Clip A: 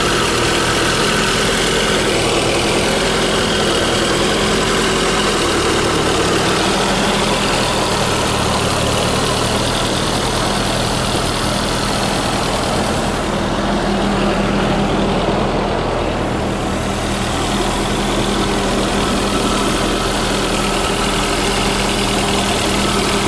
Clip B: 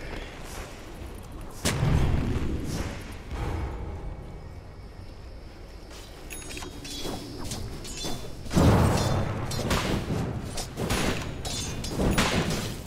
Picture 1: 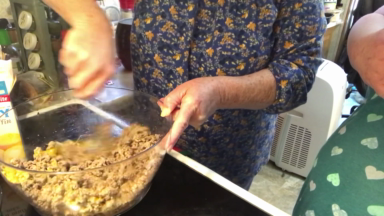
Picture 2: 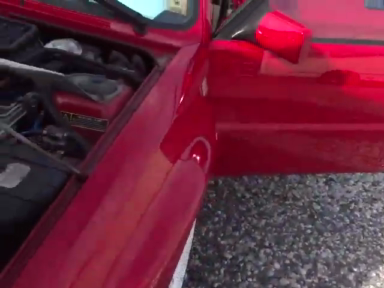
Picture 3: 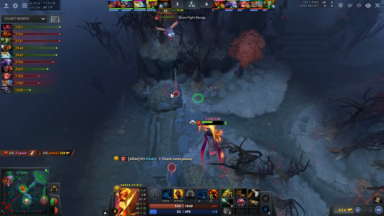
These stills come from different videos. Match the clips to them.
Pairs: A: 2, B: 3